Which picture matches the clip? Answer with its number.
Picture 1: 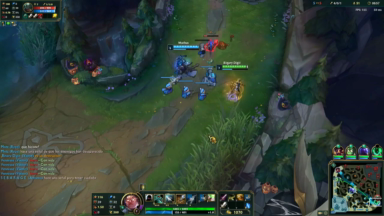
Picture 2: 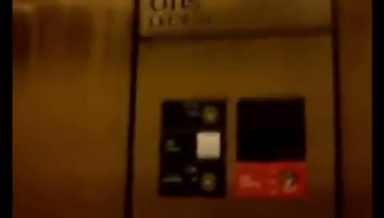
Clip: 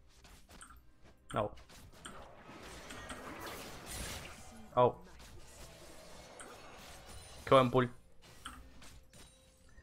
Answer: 1